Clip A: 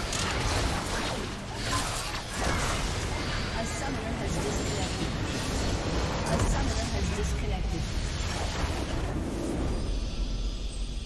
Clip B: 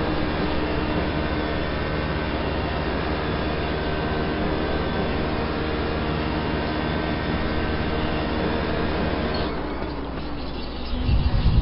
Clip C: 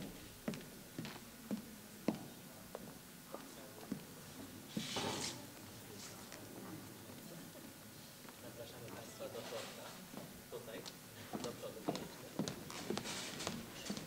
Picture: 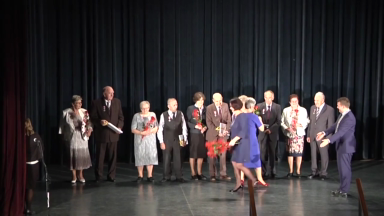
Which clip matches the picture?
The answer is C